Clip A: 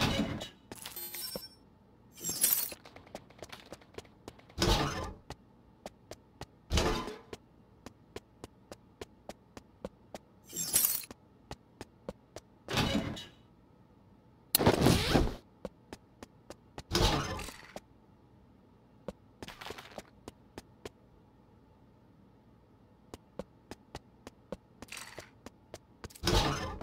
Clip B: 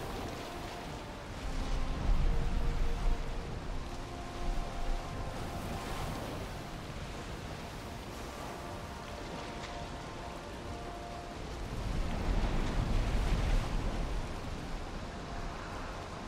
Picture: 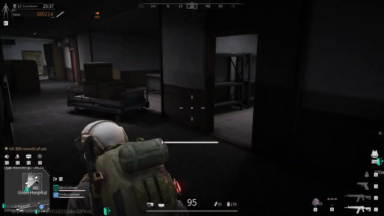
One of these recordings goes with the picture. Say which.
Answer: A